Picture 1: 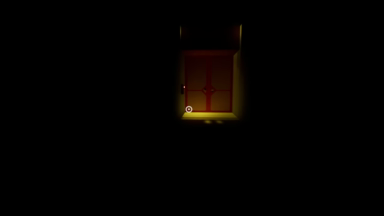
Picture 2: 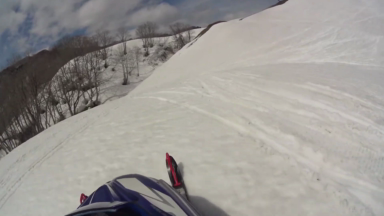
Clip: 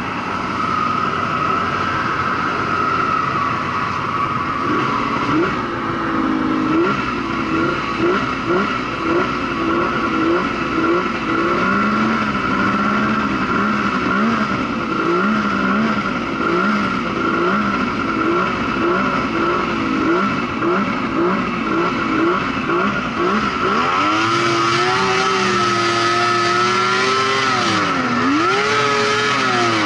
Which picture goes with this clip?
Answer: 2